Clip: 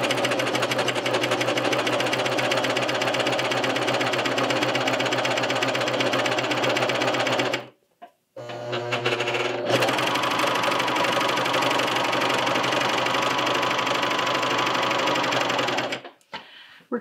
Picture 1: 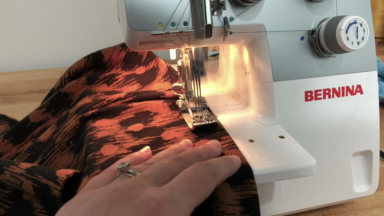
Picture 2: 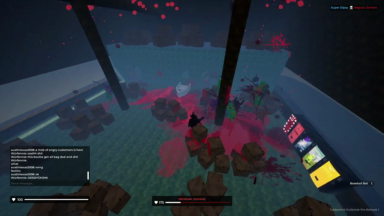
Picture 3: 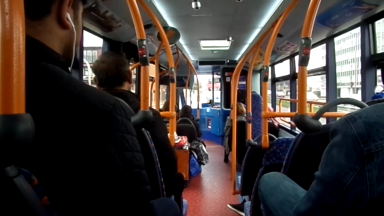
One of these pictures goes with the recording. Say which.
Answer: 1